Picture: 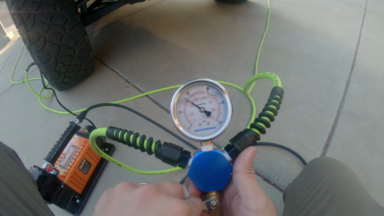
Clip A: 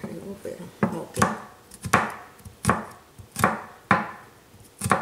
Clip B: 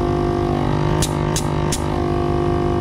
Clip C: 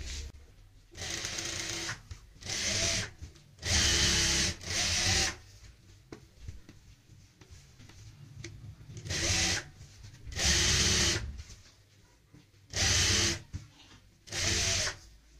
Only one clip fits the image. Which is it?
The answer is B